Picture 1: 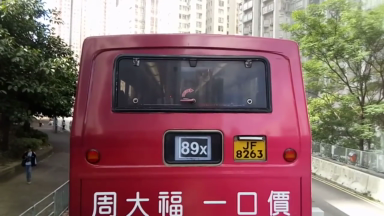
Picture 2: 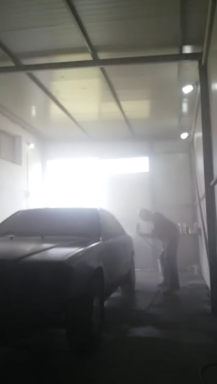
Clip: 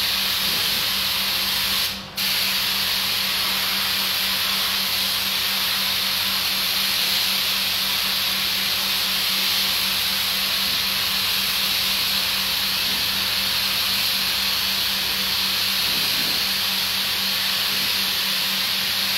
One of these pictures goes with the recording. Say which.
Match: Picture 2